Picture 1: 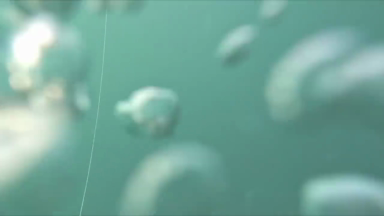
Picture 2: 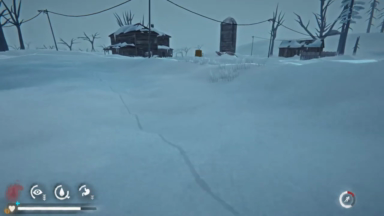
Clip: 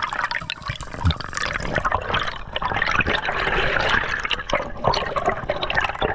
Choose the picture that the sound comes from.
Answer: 1